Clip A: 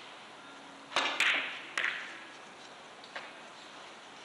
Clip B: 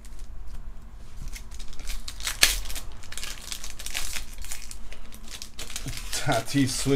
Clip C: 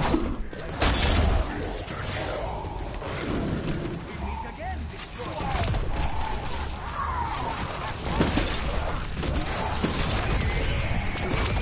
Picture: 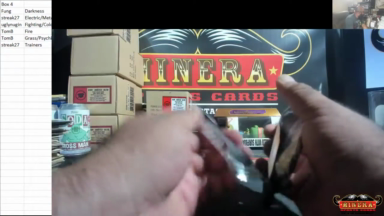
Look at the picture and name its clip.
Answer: B